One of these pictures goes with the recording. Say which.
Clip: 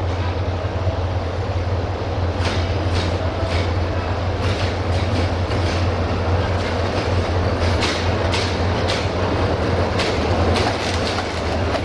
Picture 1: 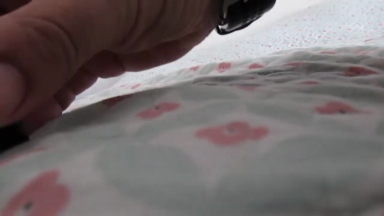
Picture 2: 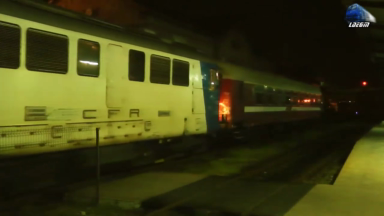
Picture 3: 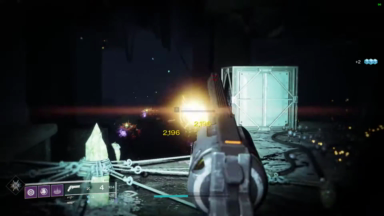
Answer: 2